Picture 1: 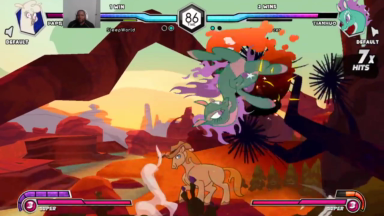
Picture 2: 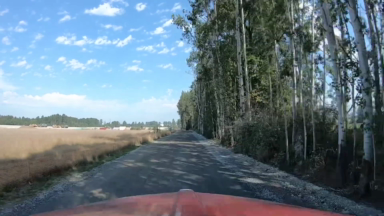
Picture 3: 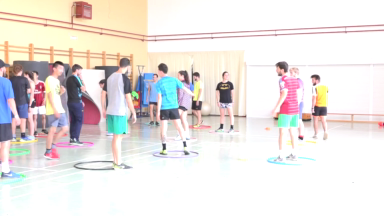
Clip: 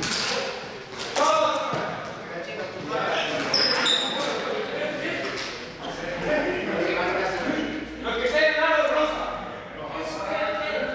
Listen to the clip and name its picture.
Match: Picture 3